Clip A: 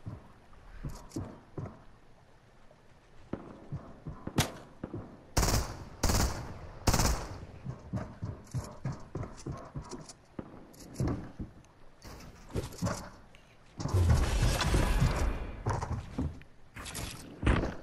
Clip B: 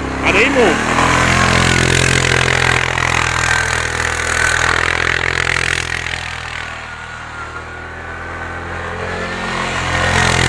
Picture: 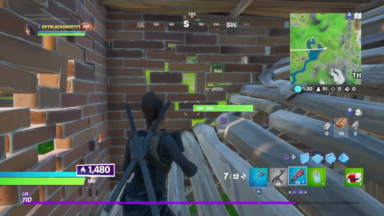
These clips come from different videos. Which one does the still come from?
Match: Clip A